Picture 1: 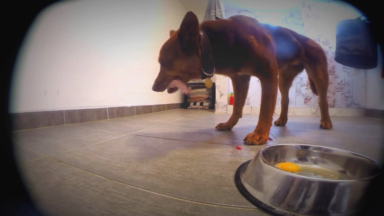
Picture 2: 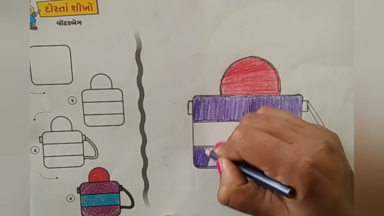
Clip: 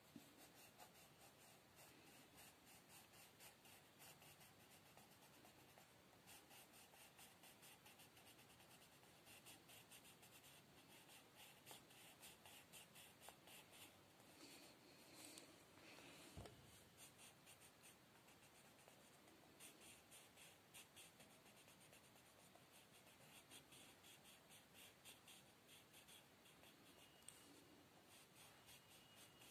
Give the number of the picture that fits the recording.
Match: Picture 2